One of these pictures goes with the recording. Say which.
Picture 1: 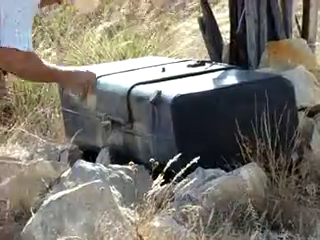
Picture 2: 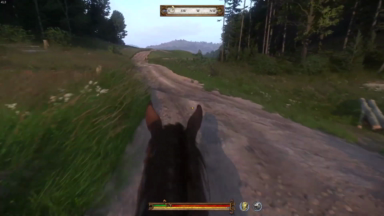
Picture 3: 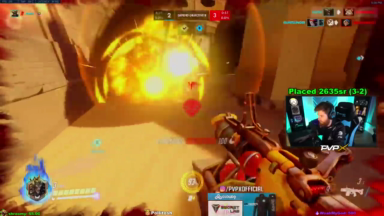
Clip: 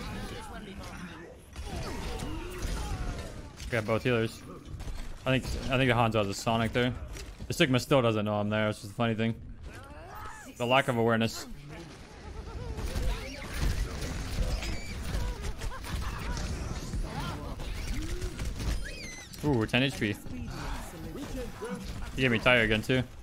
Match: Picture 3